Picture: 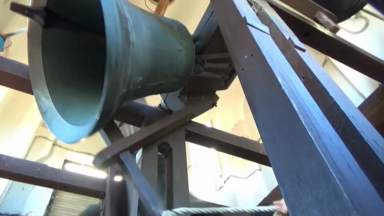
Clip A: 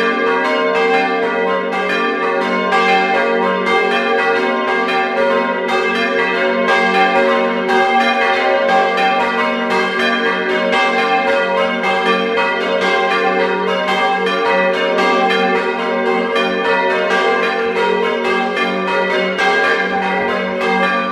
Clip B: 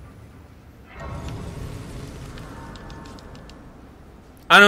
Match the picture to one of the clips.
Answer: A